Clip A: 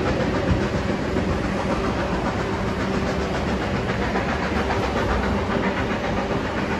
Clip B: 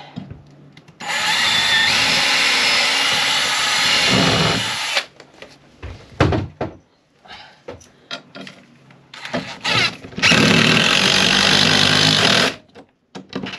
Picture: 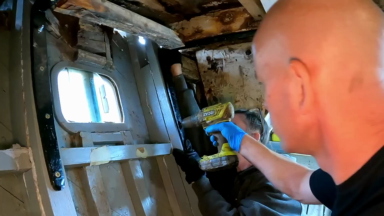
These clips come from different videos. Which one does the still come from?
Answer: B